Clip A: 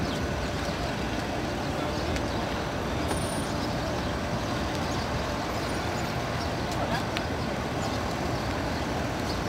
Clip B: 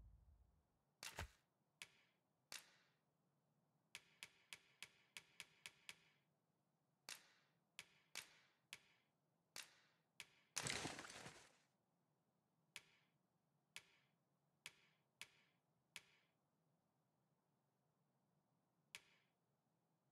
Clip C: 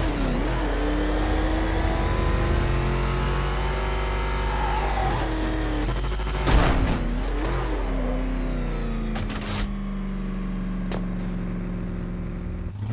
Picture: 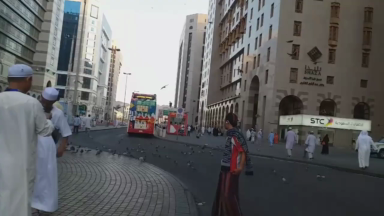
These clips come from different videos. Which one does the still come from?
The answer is A